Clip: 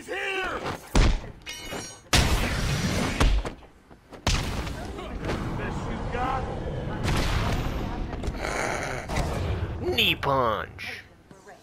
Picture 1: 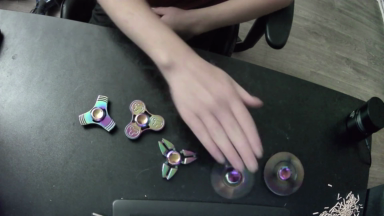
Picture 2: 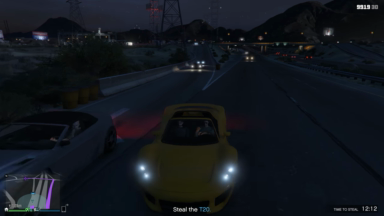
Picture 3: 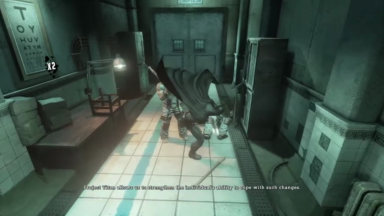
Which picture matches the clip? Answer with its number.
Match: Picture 3